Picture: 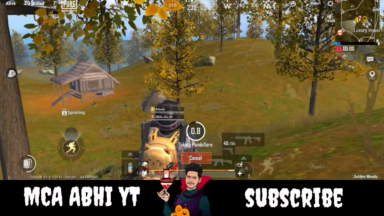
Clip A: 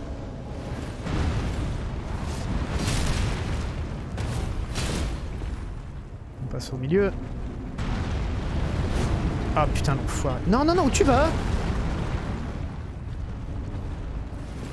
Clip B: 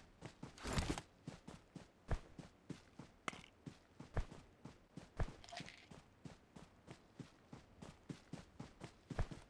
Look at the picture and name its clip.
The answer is B